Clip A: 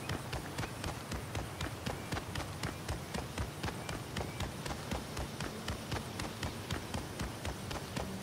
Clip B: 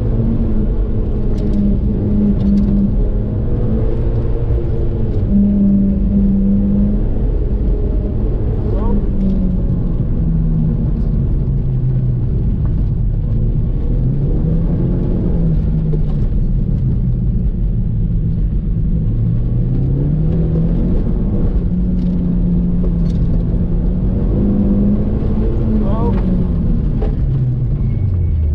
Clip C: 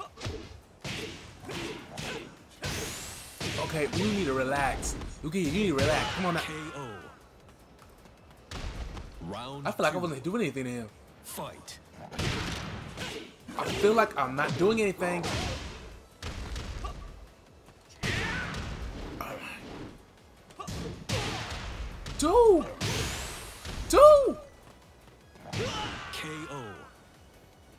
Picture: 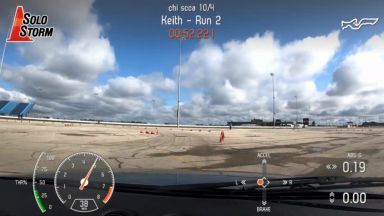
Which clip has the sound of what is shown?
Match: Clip B